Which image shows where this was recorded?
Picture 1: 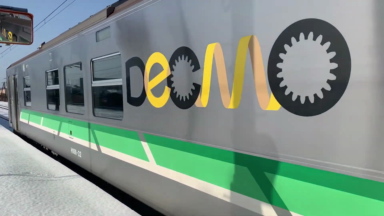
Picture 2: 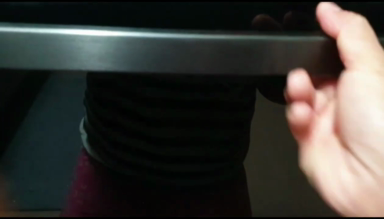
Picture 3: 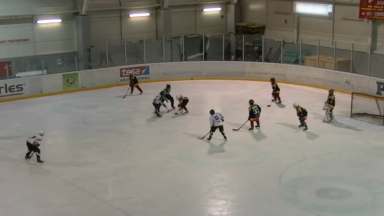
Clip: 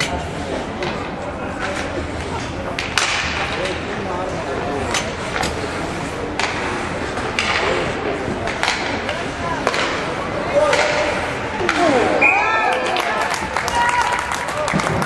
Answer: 3